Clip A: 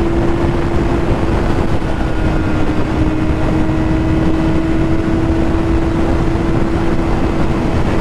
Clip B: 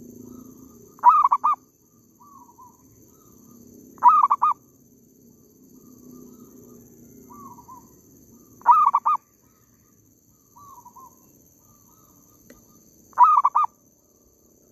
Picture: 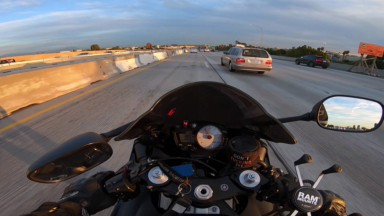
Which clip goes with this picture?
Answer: A